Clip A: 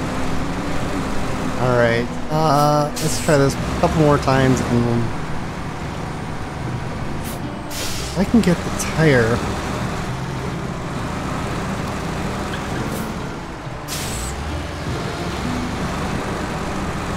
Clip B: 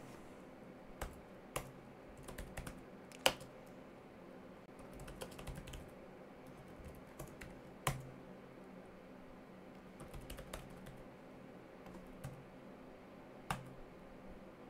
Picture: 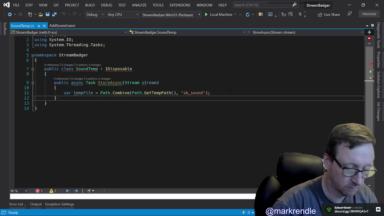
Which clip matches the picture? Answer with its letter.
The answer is B